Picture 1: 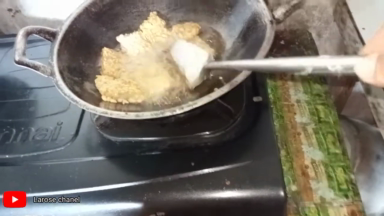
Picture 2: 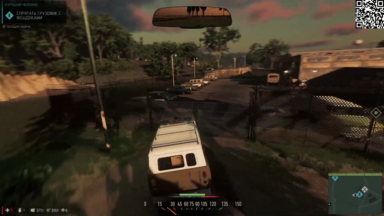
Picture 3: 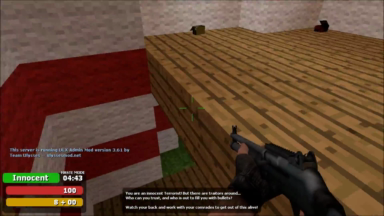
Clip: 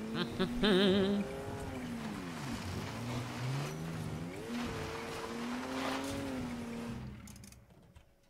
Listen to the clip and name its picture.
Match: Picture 2